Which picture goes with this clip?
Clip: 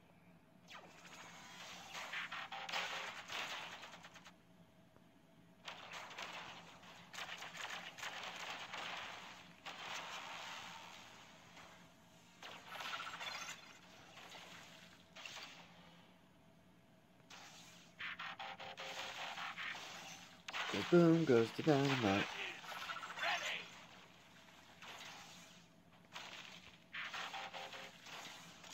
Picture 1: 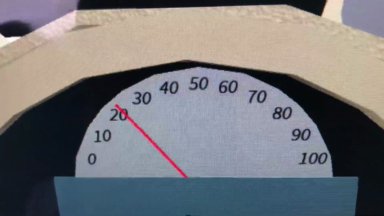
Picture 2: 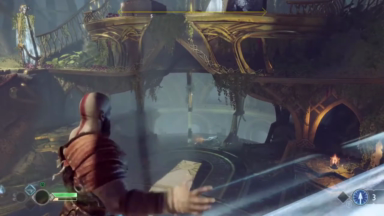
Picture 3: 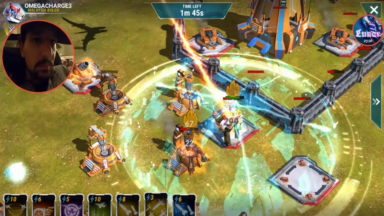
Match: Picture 3